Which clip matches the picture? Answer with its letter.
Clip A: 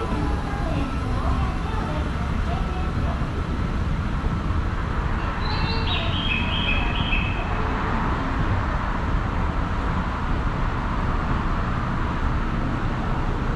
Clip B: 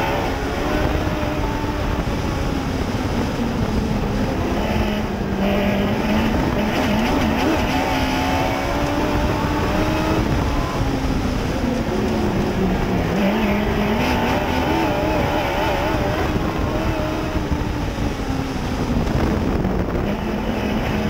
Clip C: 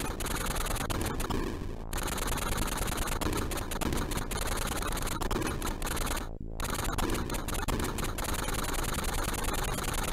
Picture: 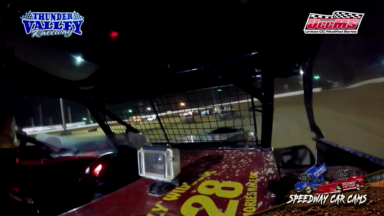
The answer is B